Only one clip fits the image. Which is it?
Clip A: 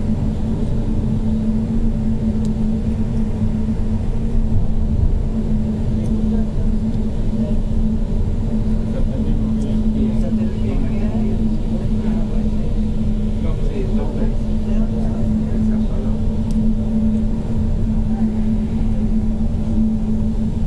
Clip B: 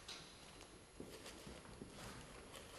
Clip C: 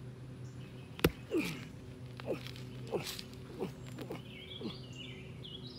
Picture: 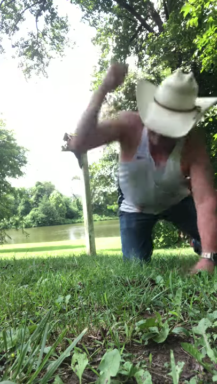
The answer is C